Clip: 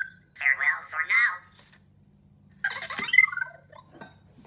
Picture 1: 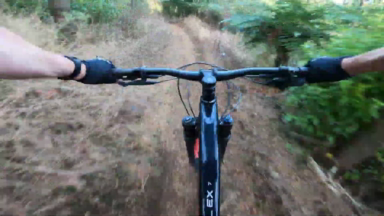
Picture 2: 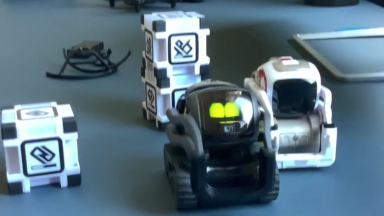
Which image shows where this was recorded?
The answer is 2